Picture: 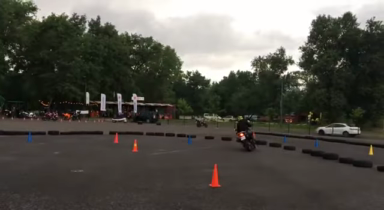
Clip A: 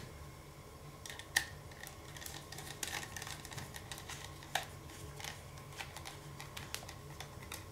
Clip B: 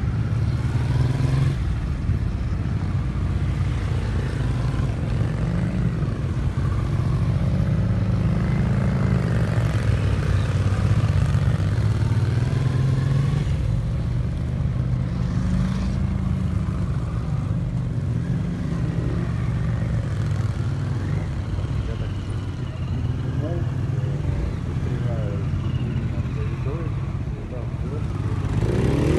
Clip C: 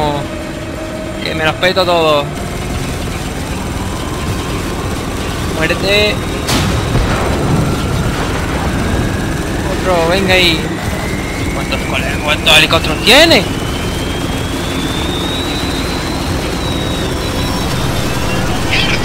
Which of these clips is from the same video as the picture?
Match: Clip B